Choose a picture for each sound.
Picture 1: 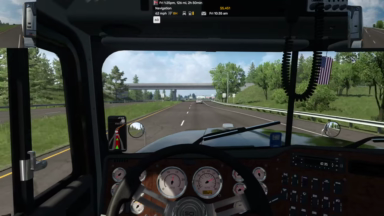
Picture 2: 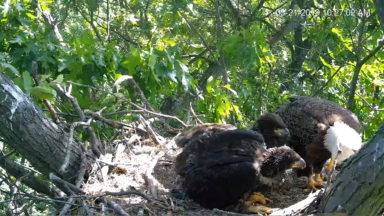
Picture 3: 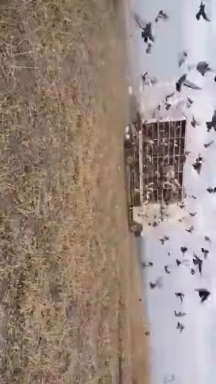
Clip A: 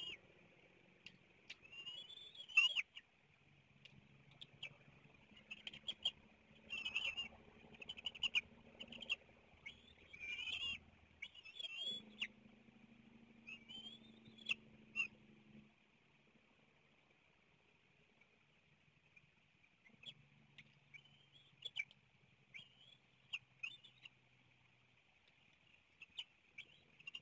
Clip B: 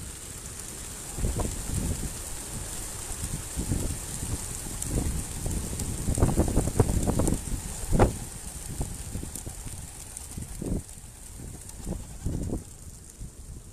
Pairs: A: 2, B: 3